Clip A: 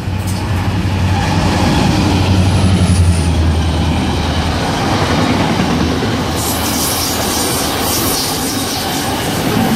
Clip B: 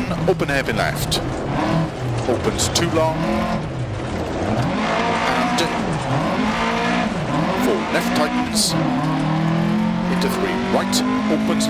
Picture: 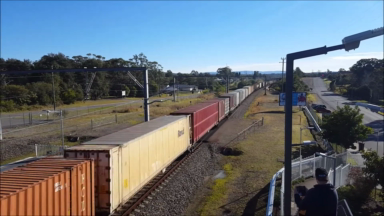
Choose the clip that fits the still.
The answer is A